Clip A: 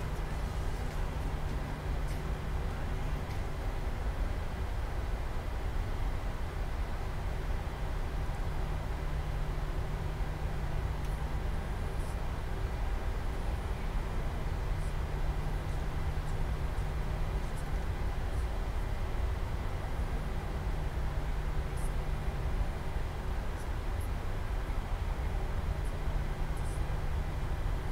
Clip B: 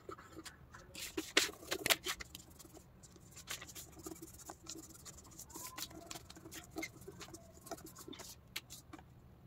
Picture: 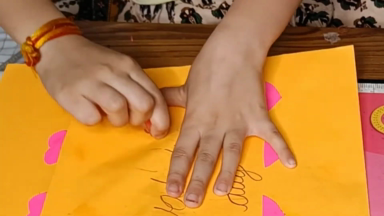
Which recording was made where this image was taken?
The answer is B